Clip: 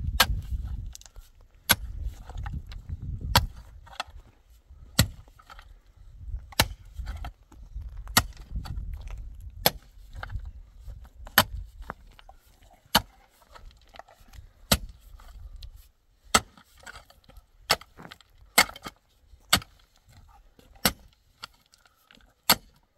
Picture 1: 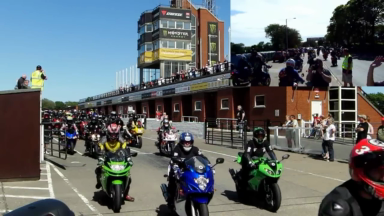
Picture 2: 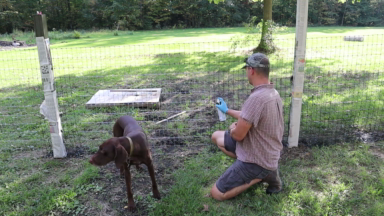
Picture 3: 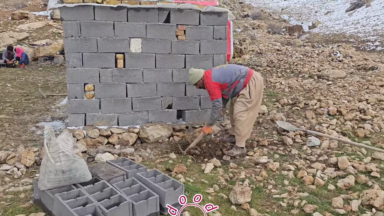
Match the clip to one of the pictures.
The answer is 3